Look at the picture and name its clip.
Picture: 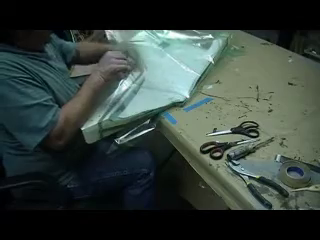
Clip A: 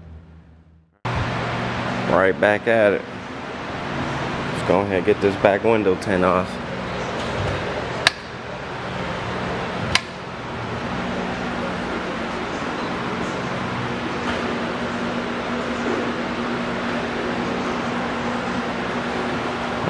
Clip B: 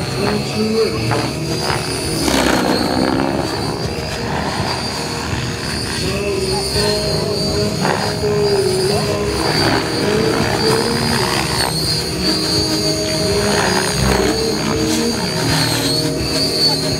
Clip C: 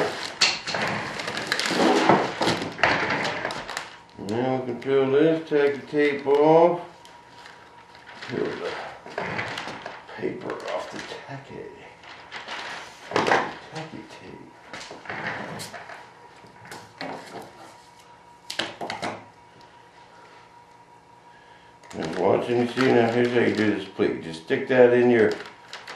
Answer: C